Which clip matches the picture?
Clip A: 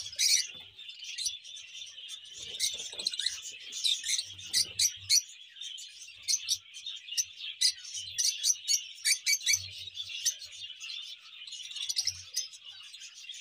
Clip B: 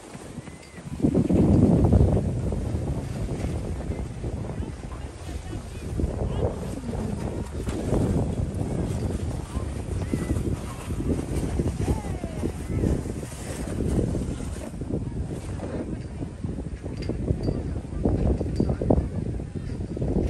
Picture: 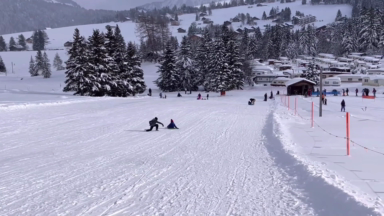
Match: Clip B